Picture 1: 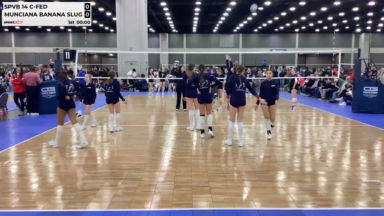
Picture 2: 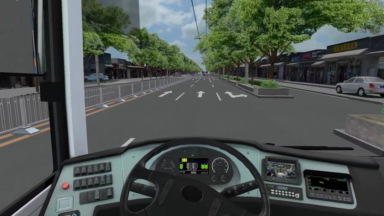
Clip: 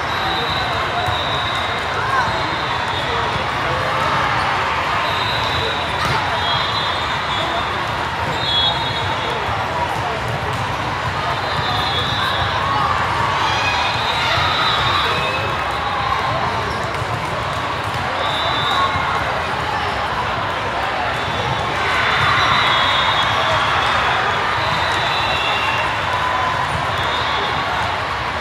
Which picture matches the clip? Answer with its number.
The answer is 1